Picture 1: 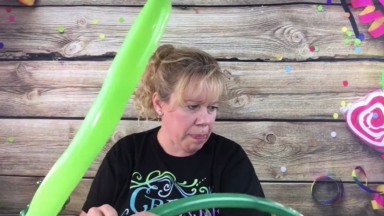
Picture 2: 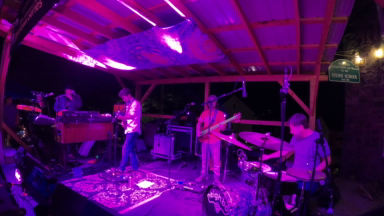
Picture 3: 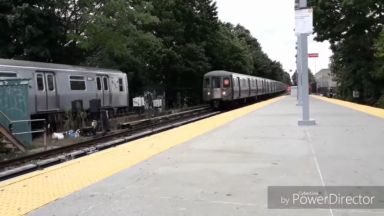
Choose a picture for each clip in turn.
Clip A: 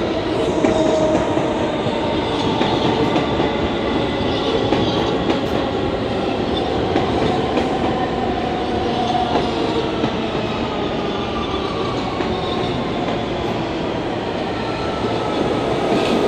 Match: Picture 3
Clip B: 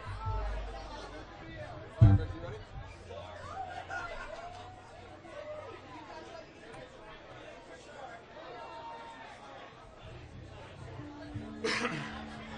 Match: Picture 2